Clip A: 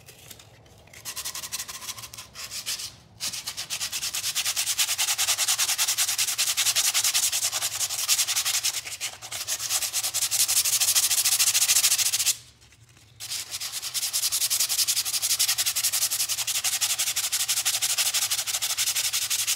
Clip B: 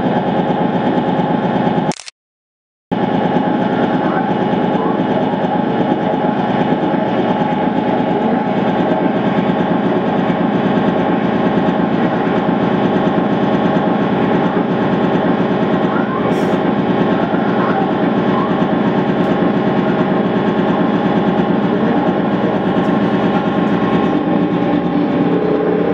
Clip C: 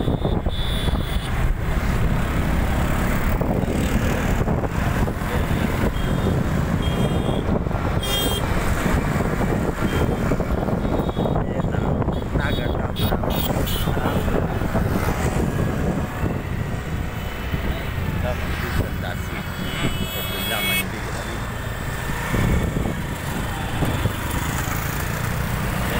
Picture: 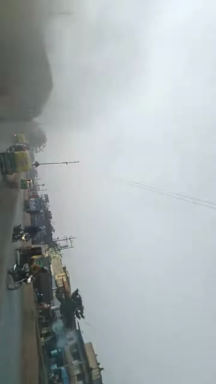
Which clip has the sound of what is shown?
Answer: C